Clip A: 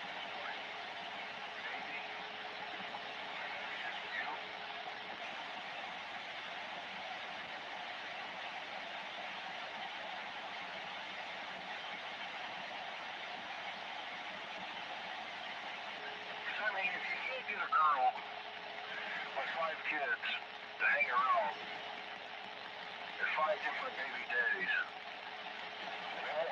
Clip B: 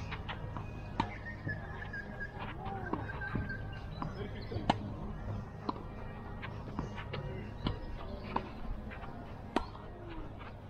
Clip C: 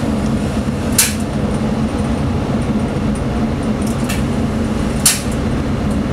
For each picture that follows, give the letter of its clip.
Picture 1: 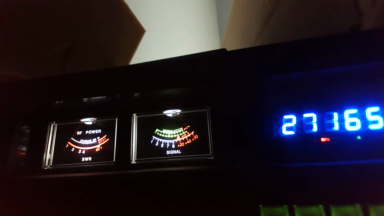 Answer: A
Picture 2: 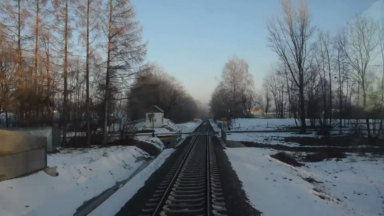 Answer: C